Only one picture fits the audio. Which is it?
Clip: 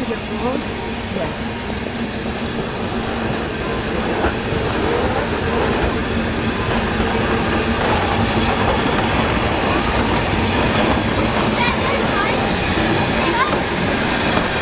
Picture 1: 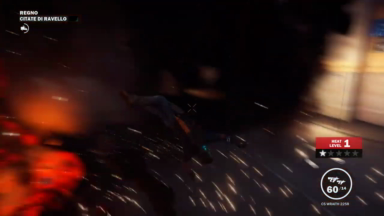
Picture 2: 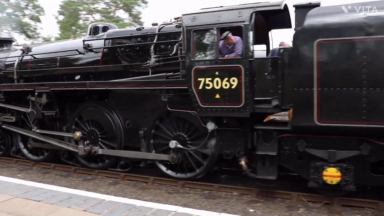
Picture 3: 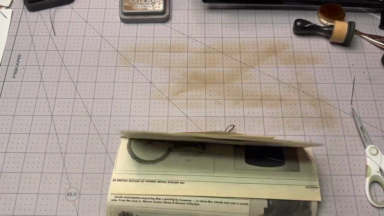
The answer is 2